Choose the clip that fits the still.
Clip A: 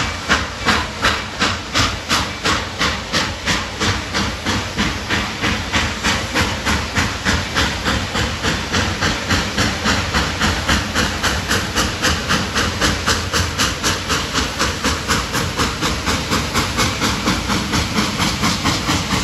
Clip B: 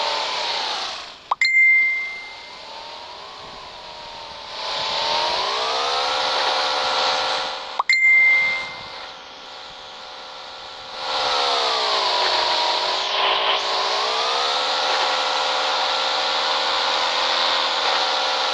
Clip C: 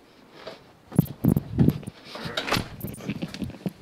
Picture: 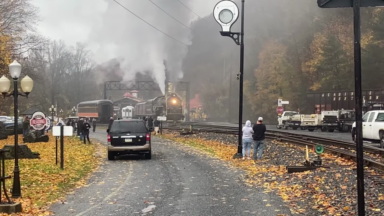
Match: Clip A